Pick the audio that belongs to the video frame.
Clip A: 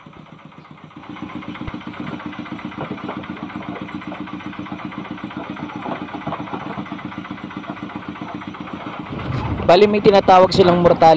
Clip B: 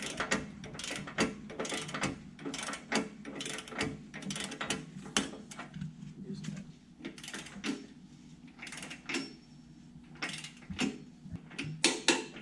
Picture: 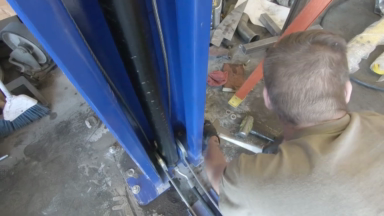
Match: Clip B